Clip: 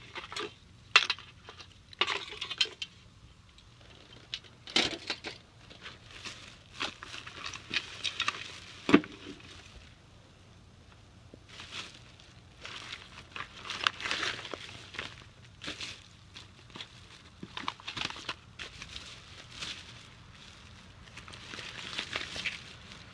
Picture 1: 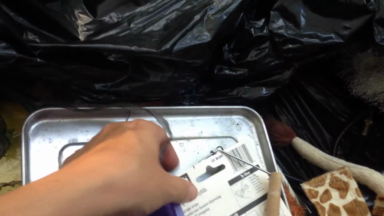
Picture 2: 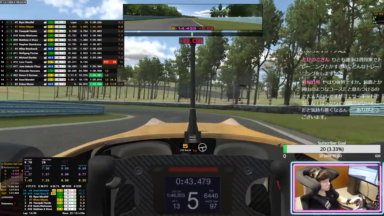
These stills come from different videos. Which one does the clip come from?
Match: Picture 1